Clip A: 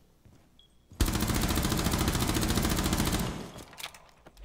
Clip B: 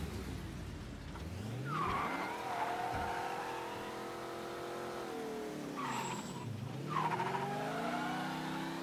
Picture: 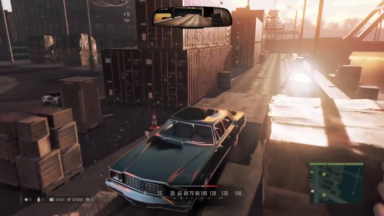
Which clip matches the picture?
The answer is B